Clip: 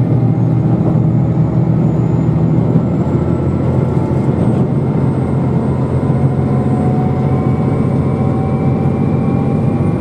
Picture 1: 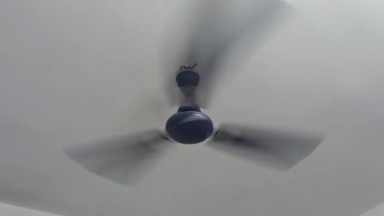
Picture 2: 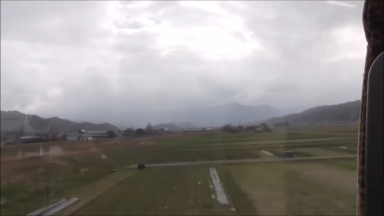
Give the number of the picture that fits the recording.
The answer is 2